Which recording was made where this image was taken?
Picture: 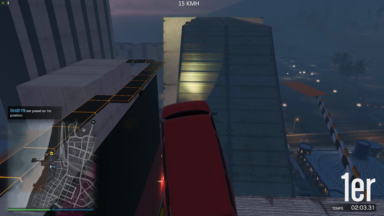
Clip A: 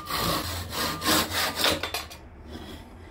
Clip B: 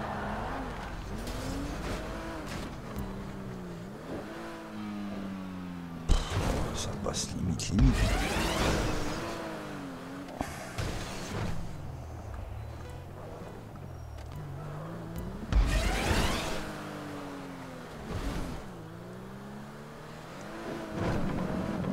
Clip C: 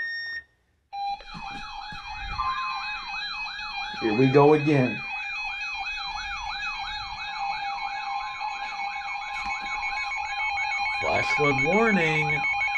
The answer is B